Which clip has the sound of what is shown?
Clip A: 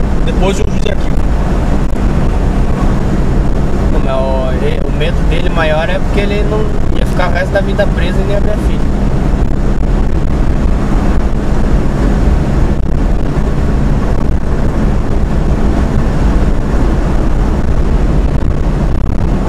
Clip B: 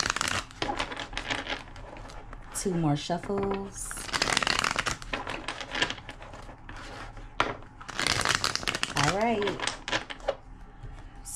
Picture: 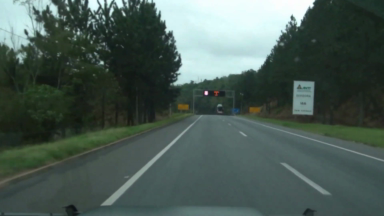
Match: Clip A